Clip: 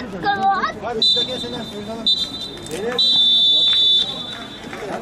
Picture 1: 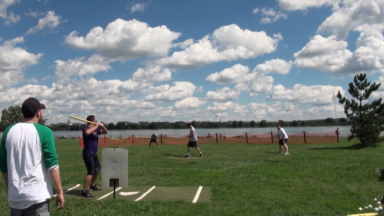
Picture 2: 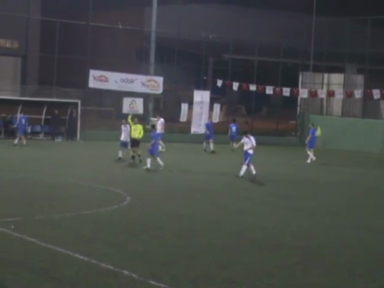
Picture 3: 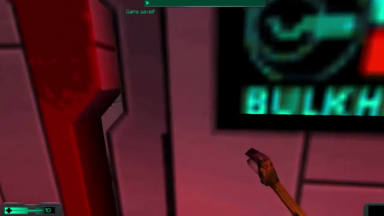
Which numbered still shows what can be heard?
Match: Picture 2